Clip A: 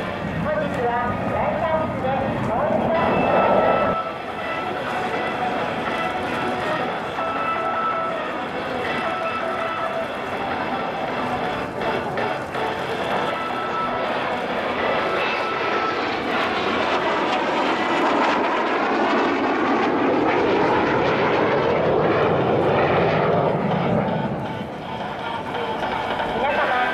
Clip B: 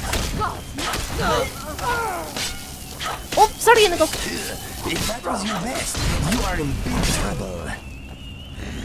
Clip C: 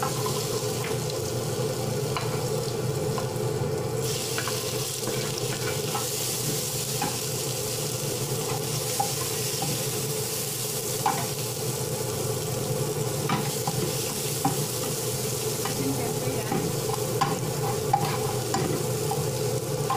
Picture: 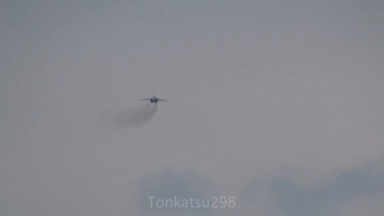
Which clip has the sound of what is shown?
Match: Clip A